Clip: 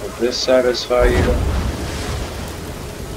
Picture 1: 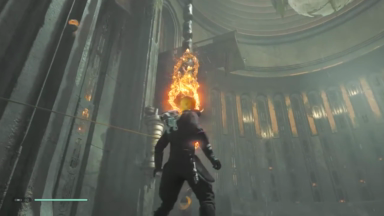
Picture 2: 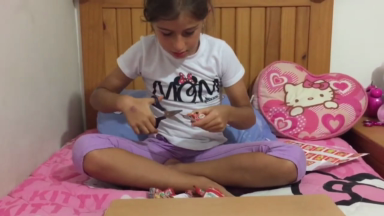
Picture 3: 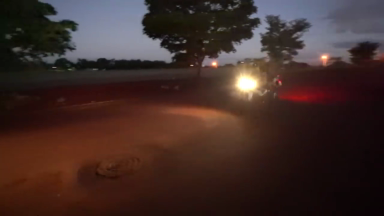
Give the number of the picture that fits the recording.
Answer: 1